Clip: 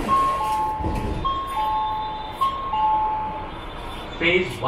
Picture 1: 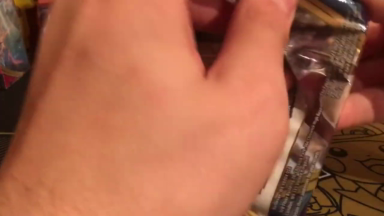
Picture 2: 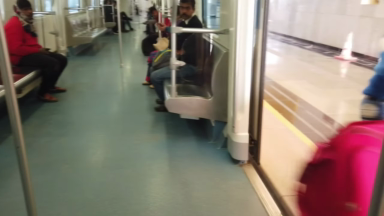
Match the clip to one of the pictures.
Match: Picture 2